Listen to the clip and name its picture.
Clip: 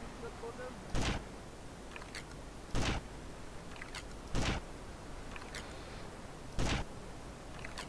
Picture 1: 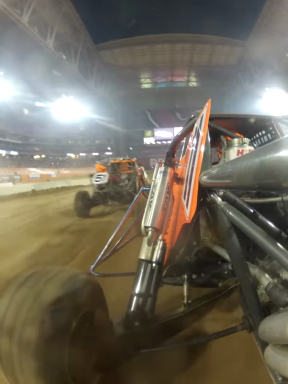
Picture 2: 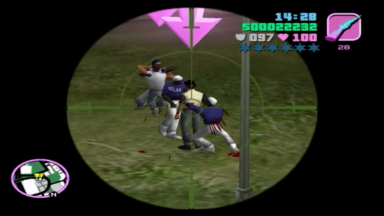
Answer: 2